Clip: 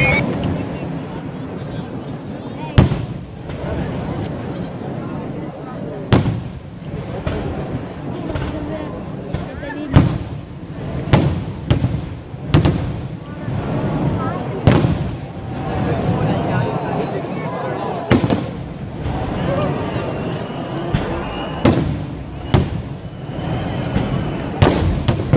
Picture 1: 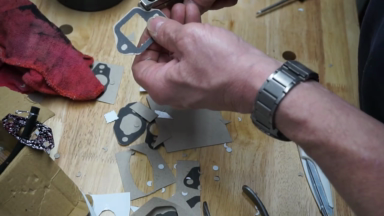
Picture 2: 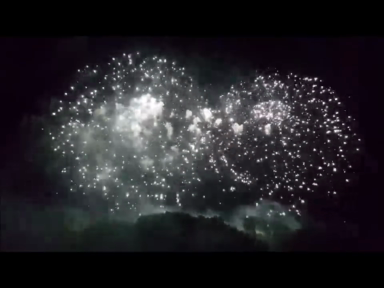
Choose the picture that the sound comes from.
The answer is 2